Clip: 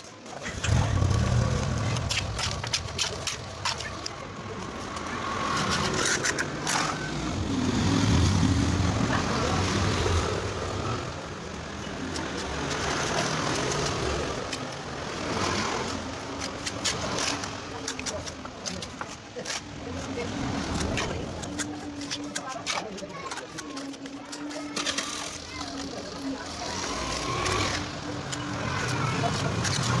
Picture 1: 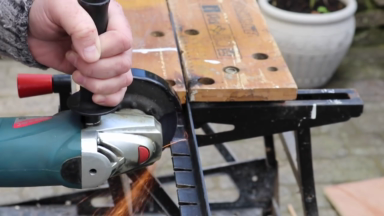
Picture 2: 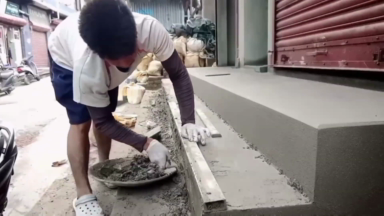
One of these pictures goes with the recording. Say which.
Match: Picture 2